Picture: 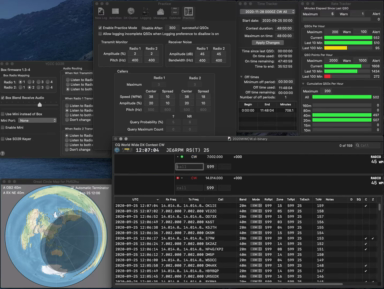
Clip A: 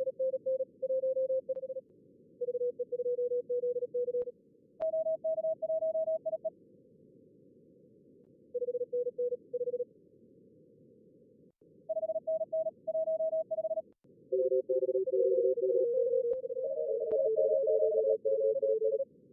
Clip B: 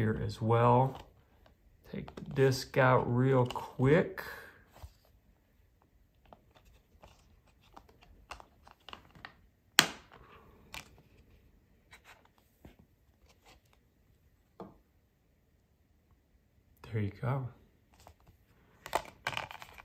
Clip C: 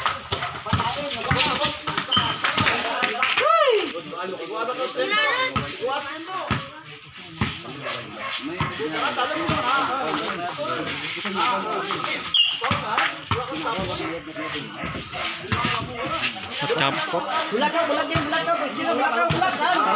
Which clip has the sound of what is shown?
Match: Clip A